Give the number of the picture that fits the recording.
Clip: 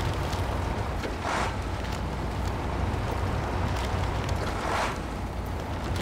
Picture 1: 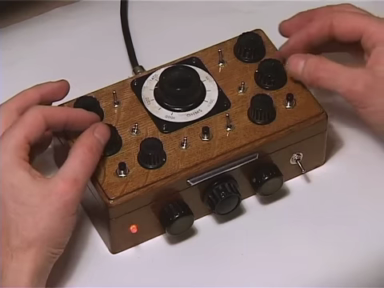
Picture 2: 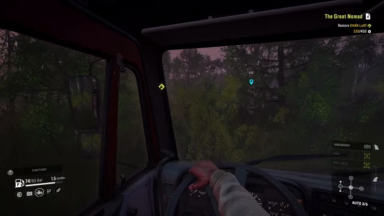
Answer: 2